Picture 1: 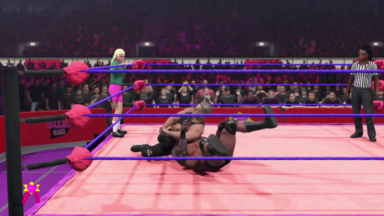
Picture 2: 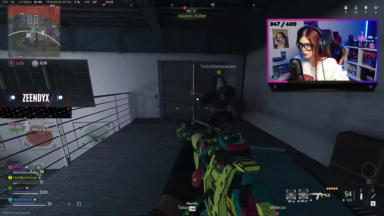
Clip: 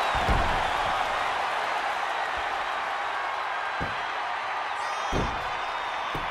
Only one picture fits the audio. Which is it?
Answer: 1